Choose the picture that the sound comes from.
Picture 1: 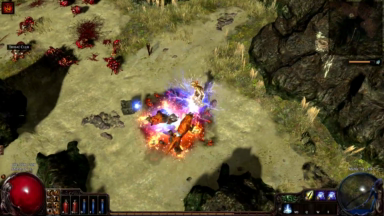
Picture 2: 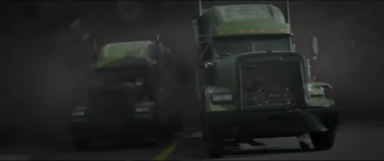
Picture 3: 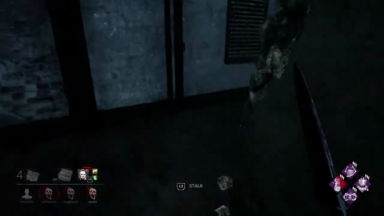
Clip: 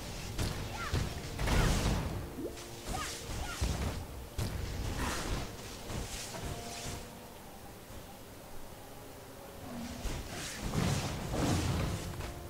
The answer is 1